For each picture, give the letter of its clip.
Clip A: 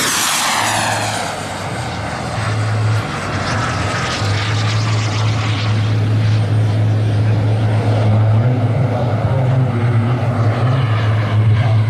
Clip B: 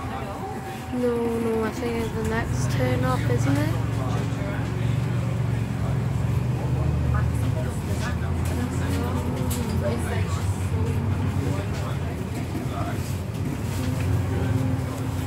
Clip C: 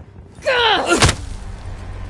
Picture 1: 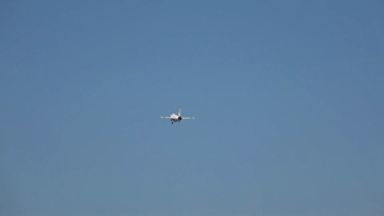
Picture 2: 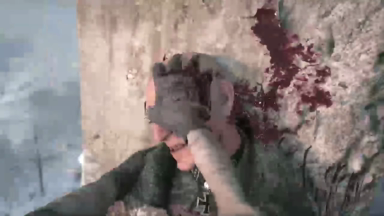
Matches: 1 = A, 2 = C